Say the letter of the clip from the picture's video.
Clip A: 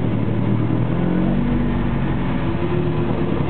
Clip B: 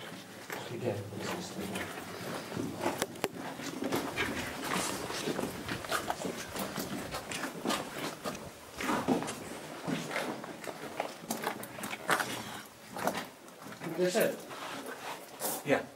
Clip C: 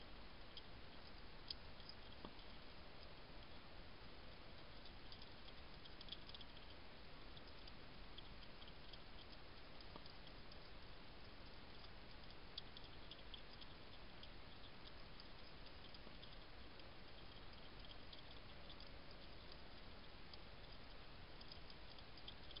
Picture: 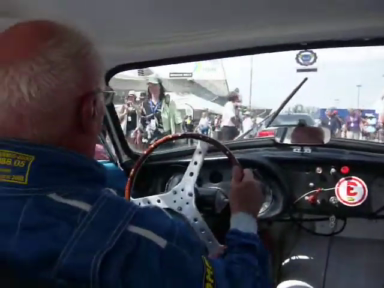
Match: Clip A